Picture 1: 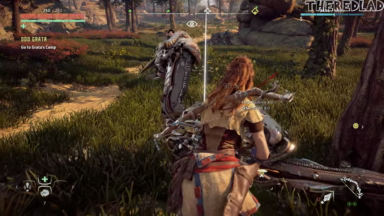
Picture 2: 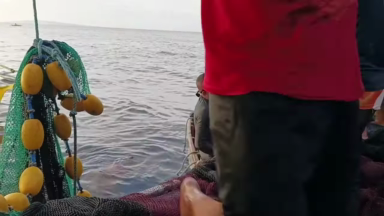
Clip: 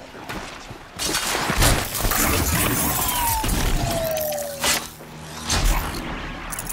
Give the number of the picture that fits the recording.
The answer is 1